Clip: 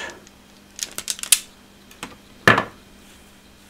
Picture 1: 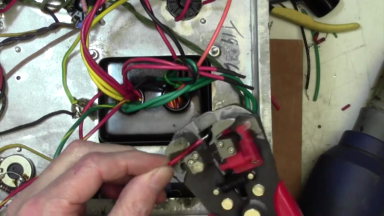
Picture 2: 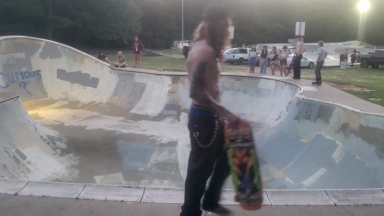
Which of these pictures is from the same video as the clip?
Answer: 1